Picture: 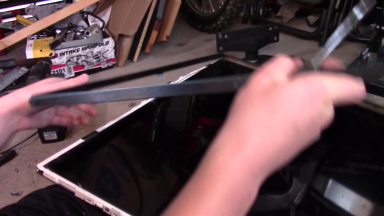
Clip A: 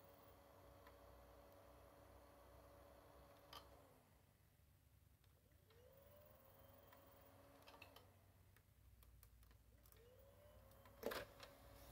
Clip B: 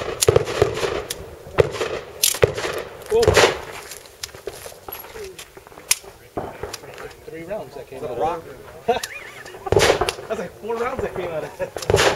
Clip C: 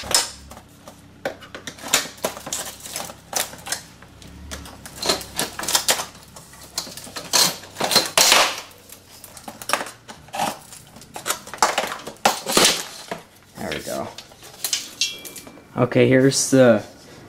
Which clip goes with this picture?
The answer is C